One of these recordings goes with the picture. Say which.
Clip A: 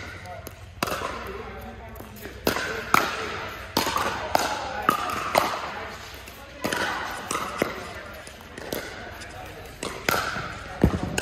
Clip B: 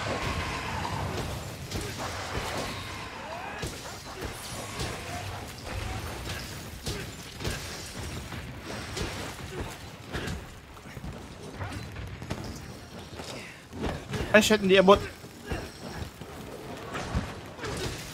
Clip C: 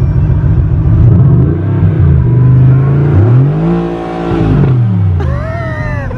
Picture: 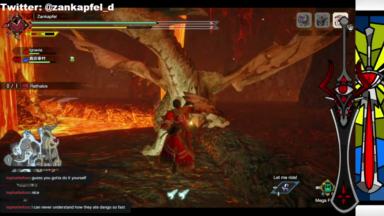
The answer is B